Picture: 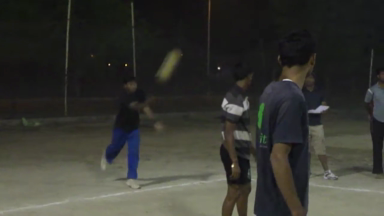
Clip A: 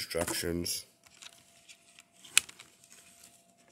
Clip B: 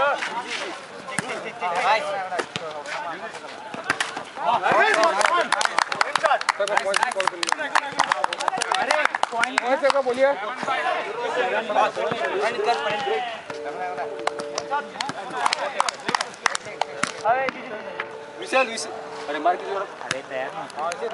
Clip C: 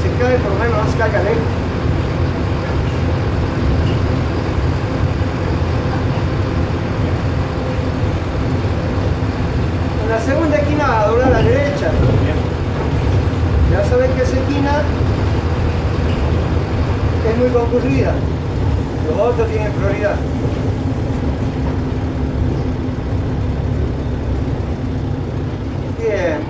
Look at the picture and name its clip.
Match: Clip B